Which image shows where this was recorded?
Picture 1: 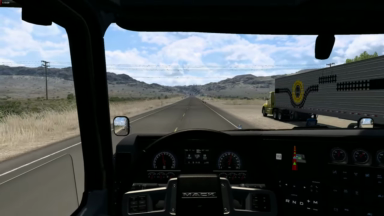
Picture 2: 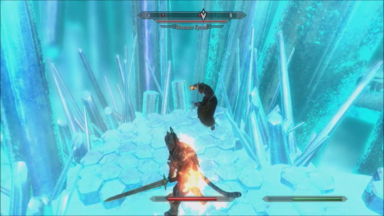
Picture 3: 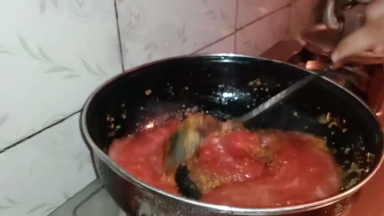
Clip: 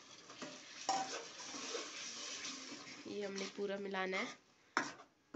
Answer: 3